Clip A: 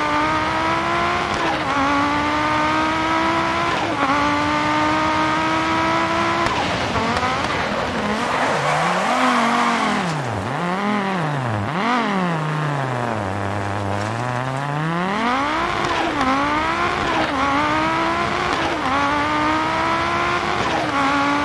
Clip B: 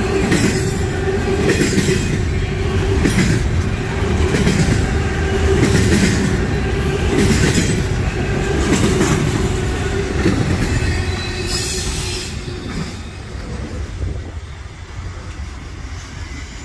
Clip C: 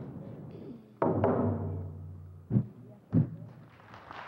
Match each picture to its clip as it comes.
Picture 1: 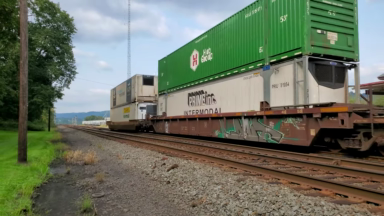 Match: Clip B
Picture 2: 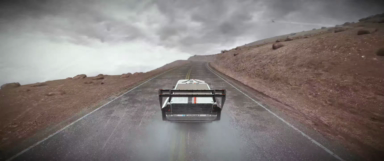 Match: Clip A